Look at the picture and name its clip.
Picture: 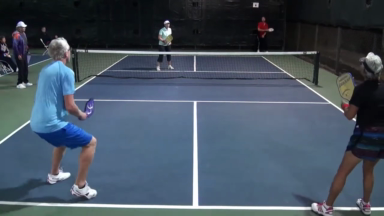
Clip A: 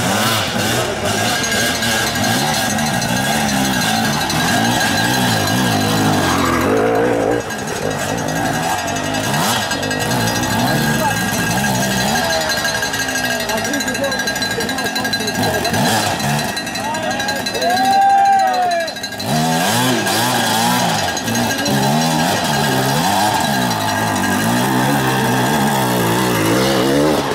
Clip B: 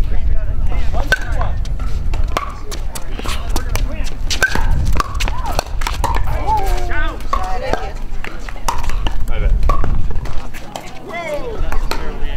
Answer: B